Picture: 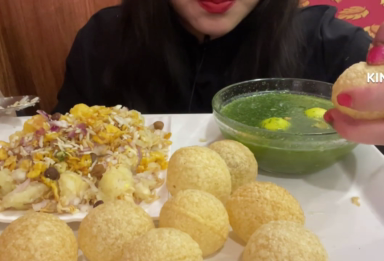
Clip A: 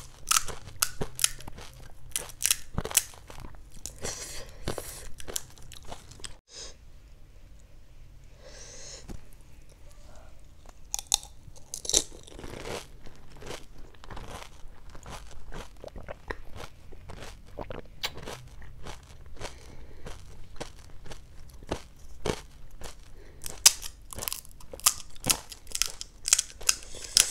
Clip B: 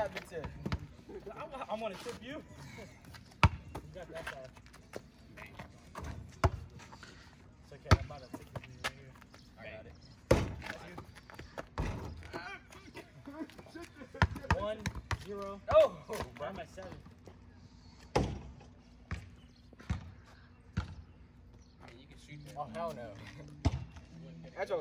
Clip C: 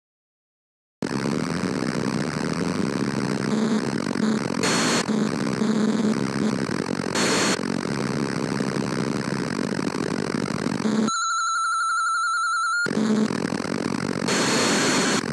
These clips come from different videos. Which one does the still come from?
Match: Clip A